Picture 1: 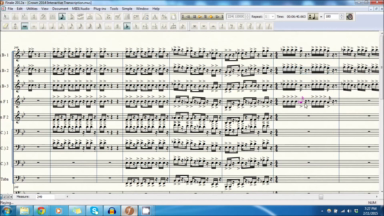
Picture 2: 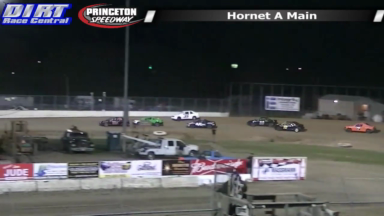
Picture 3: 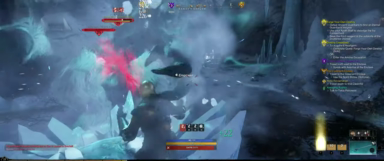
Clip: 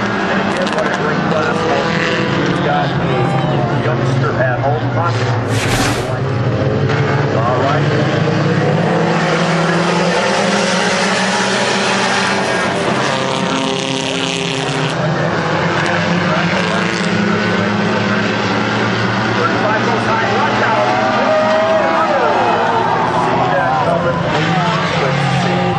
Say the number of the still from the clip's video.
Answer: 2